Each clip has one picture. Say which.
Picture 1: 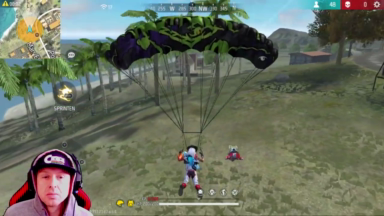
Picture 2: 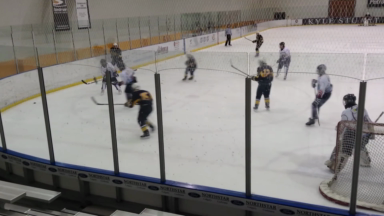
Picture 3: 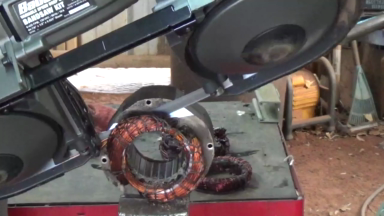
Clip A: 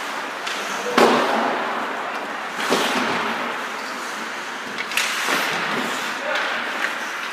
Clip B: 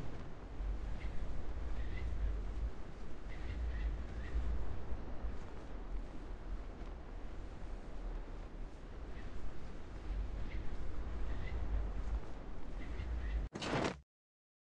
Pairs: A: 2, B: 1